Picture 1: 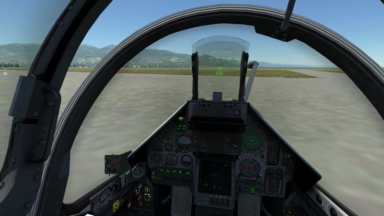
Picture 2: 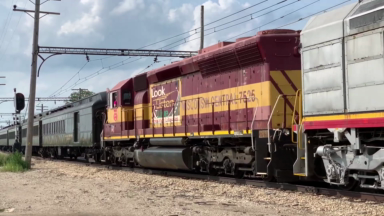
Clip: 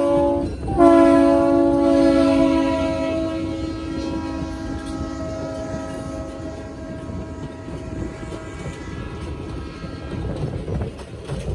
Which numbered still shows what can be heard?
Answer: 2